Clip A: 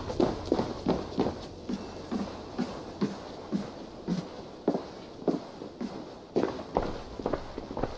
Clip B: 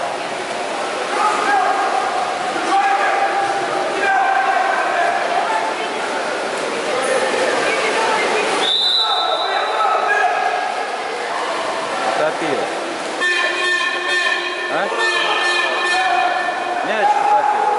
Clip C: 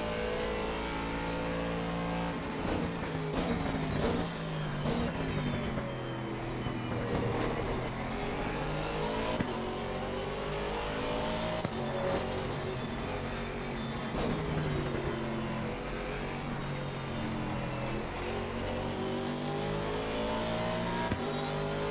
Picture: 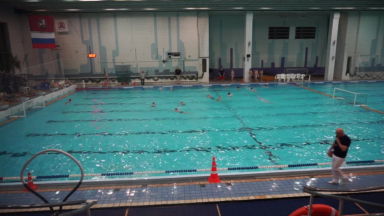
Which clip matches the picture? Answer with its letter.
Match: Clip B